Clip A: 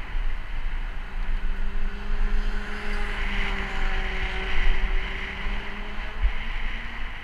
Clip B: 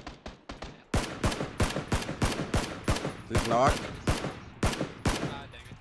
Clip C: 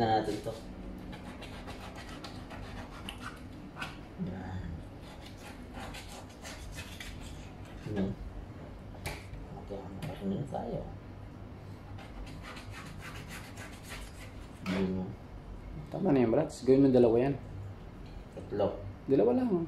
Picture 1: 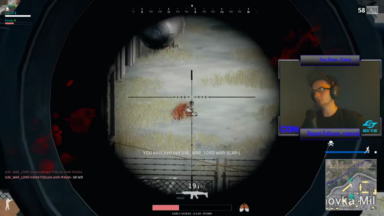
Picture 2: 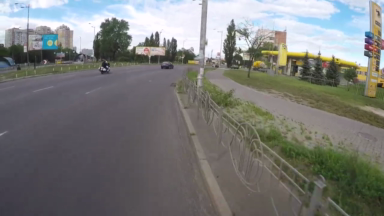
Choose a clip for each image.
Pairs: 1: B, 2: A